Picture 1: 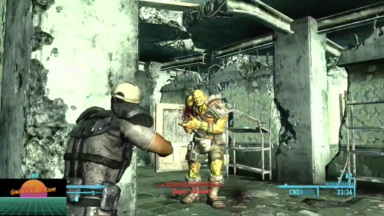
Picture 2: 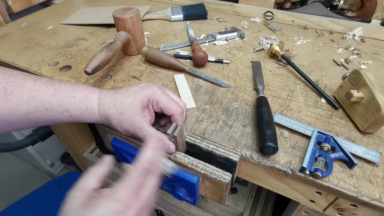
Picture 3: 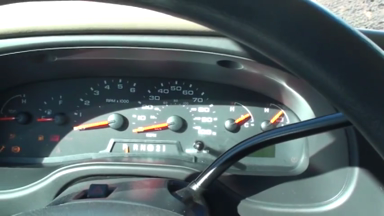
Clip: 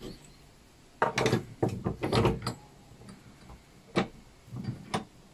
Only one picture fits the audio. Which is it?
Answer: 2